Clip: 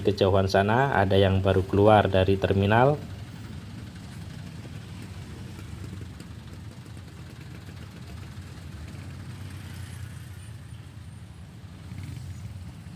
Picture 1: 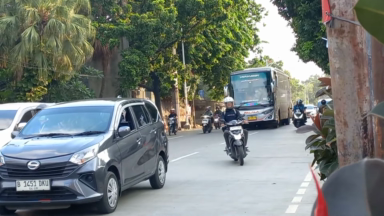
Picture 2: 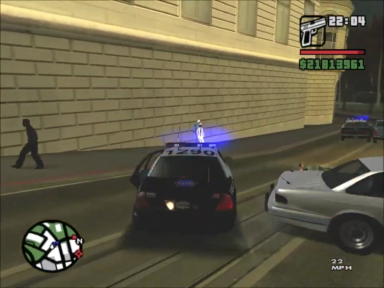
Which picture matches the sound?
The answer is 1